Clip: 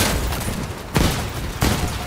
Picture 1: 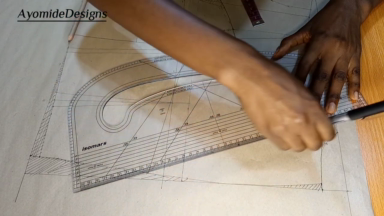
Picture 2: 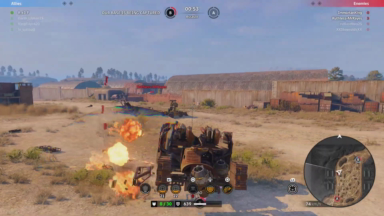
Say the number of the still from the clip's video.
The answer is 2